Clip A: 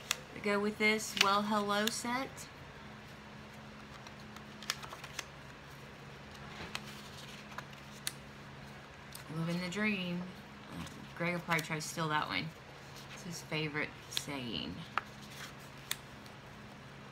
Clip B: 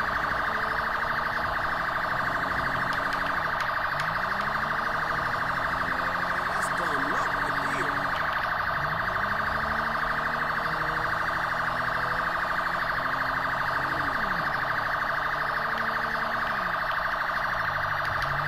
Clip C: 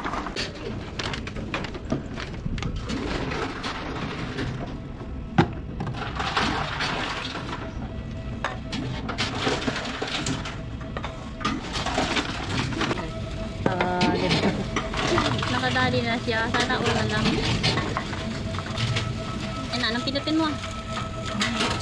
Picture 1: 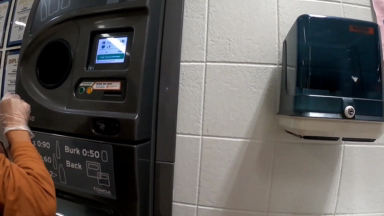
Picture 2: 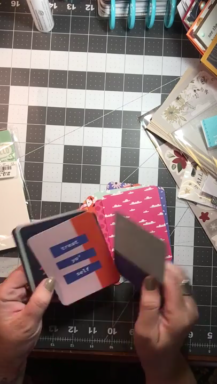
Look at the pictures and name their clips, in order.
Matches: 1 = C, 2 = A